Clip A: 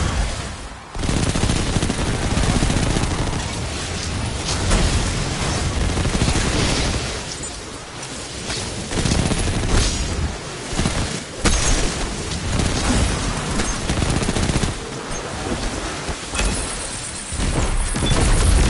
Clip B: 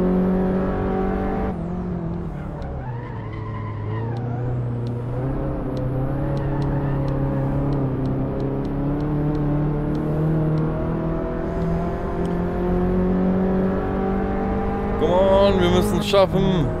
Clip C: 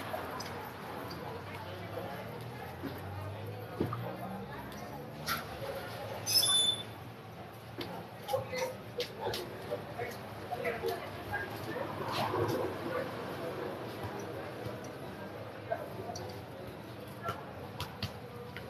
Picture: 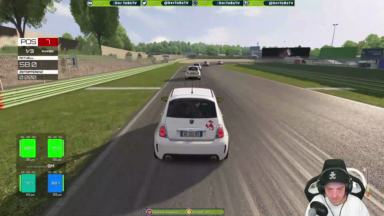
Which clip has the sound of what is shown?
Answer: B